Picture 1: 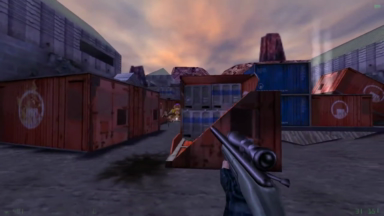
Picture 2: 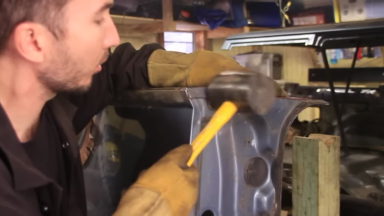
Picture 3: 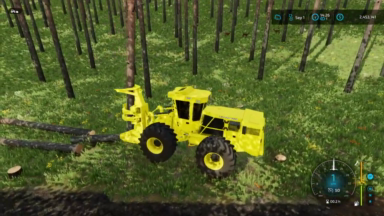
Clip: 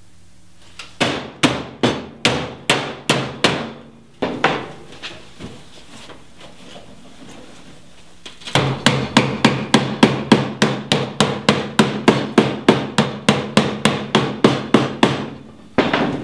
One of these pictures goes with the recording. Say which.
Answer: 2